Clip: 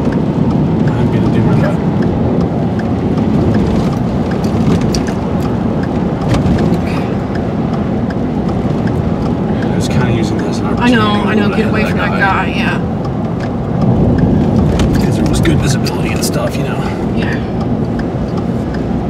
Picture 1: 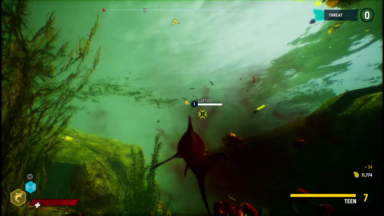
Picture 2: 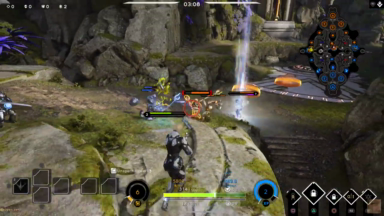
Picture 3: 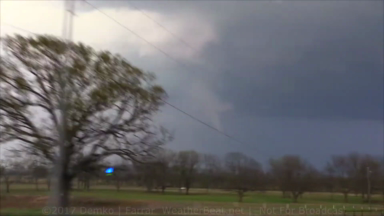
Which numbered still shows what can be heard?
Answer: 3